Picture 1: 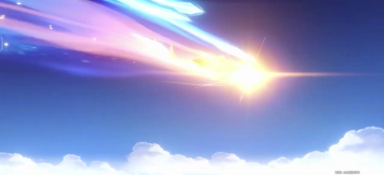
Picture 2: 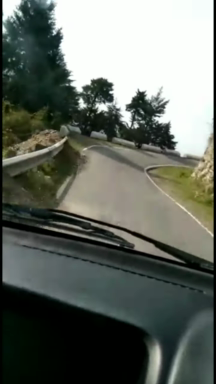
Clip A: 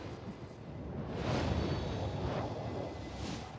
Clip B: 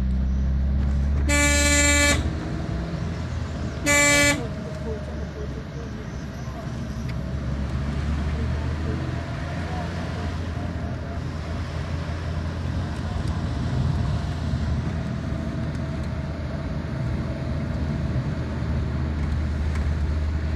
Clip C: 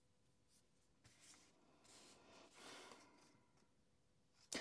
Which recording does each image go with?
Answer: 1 A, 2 B